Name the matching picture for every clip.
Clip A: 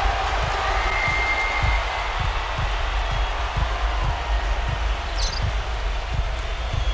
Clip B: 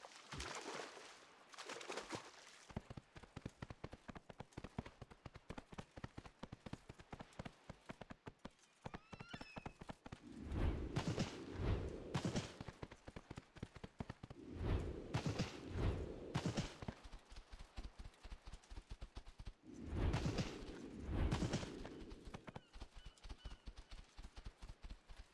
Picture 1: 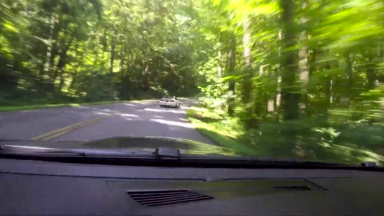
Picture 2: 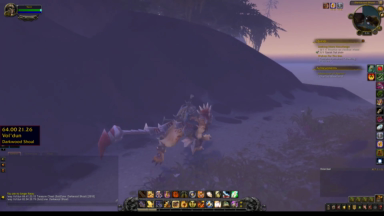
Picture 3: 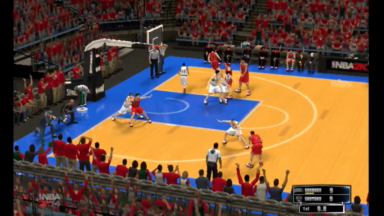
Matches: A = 3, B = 2